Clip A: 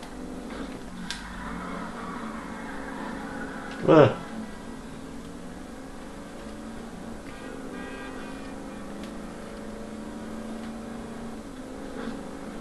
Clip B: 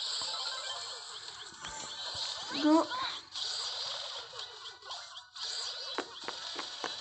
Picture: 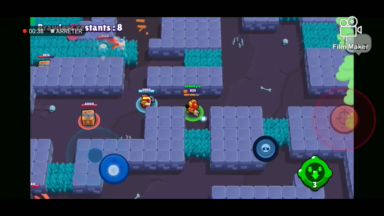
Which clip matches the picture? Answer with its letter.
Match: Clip B